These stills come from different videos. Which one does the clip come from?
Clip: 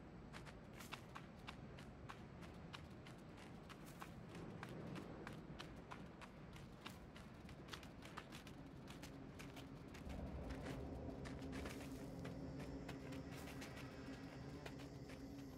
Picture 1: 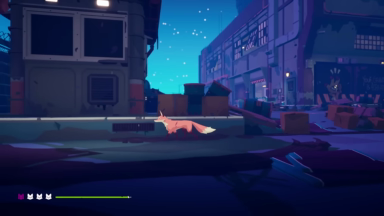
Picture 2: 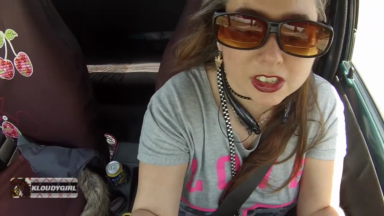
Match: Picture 1